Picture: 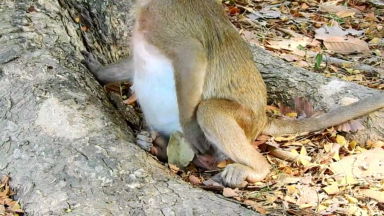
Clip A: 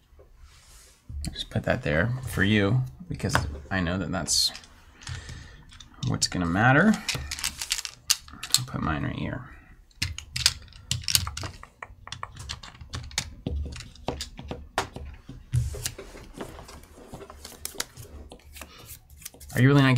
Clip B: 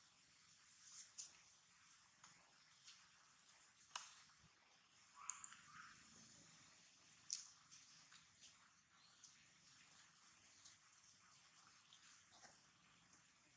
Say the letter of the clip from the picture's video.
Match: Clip B